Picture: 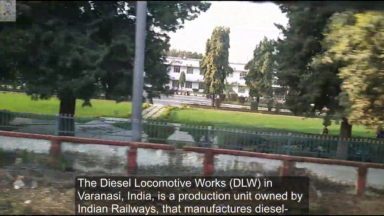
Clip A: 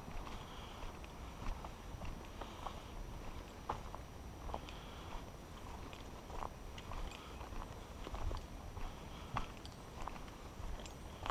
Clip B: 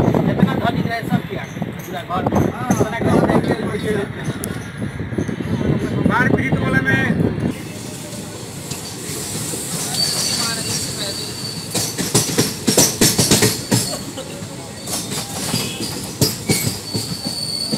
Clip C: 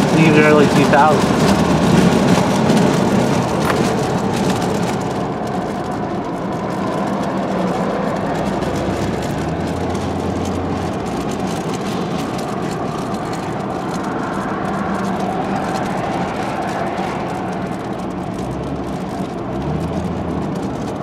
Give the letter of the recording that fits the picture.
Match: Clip B